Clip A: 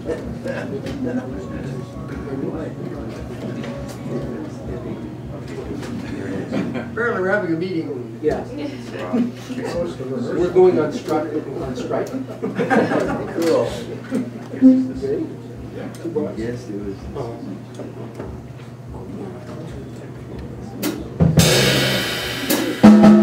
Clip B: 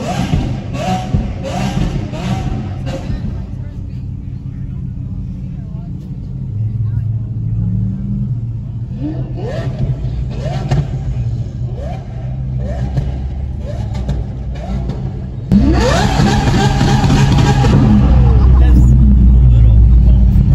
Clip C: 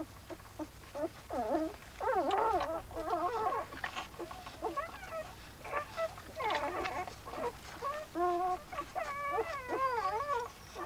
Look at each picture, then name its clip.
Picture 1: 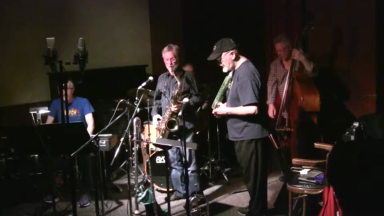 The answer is A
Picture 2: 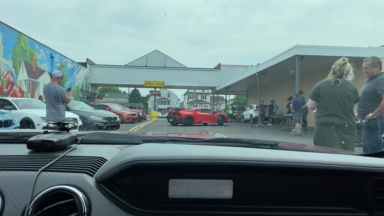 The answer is B